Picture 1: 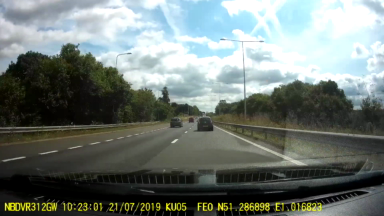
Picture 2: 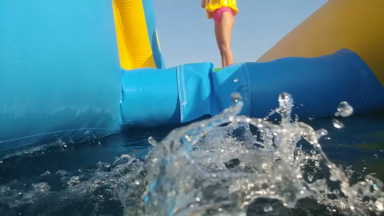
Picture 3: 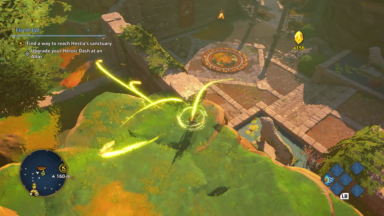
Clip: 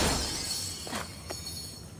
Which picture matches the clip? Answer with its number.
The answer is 3